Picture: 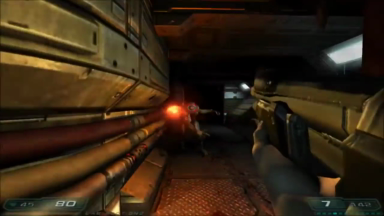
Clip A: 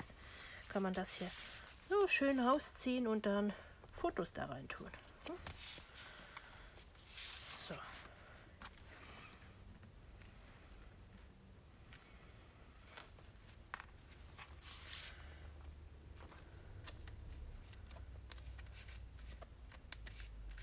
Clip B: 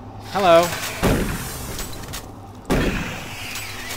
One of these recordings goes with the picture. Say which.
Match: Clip B